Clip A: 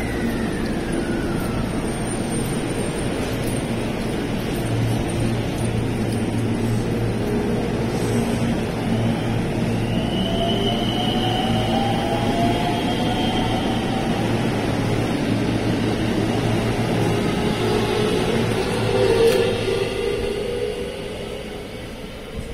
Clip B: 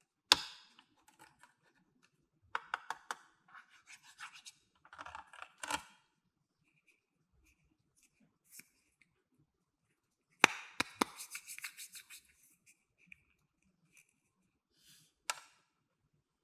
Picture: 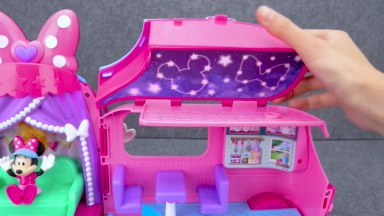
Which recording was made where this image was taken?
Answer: B